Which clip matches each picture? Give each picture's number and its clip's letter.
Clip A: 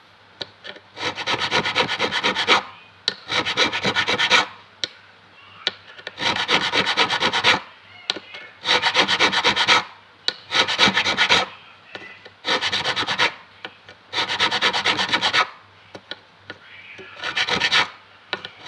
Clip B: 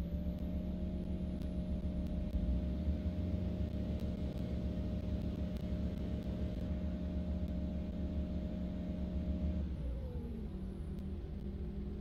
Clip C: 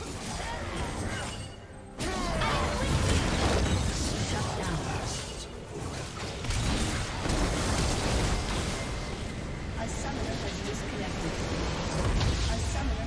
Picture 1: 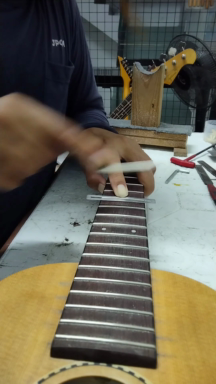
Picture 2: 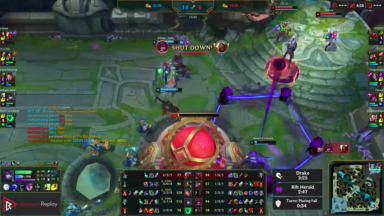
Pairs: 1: A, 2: C